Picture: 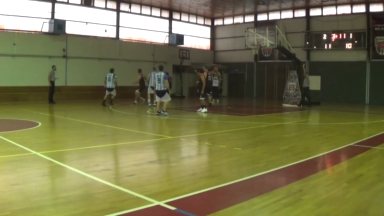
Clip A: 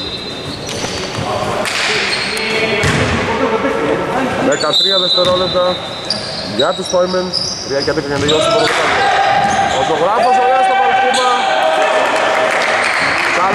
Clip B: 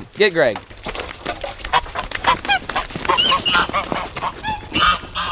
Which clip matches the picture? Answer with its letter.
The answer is A